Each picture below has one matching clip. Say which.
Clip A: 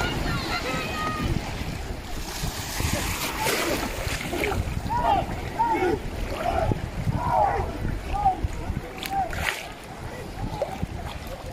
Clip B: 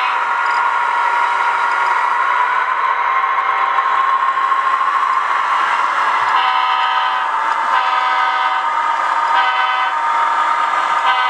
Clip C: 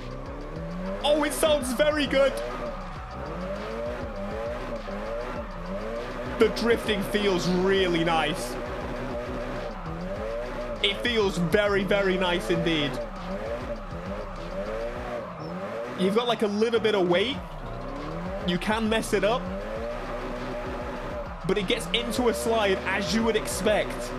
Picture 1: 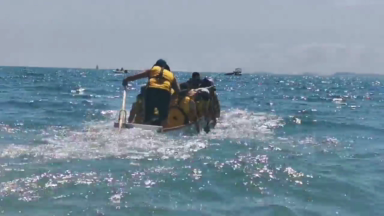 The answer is A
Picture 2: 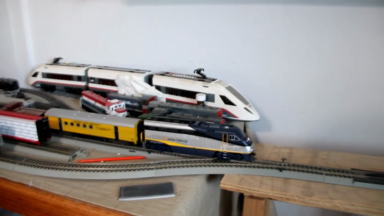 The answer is B